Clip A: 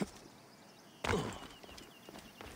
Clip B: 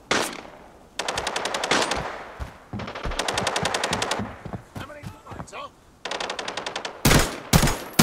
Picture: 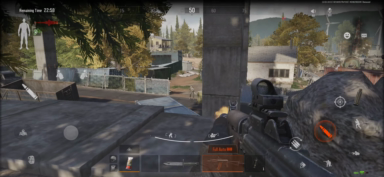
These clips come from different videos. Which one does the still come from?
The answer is B